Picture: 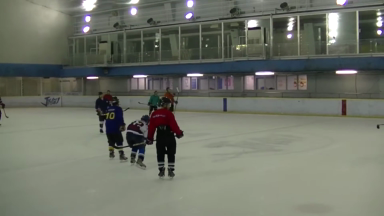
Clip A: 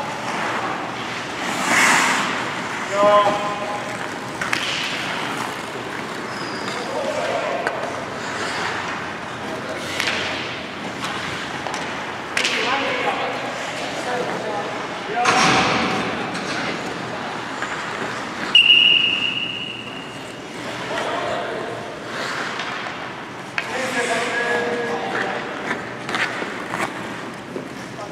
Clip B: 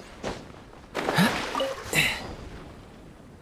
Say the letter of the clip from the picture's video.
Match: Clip A